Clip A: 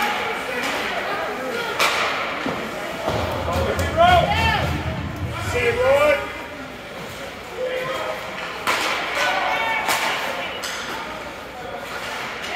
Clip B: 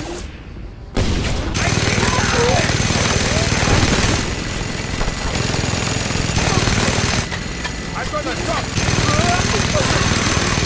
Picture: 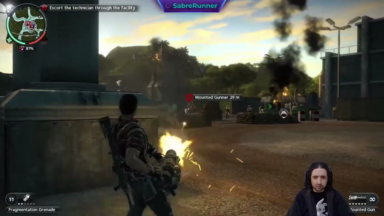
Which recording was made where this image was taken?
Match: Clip B